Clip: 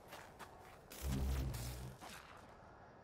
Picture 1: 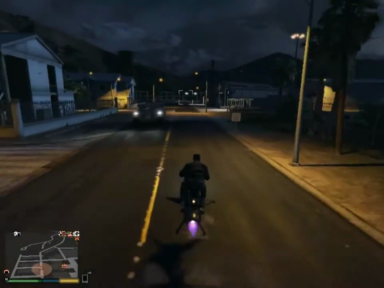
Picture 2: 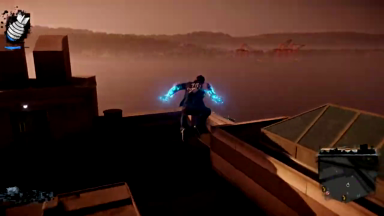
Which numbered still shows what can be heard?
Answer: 2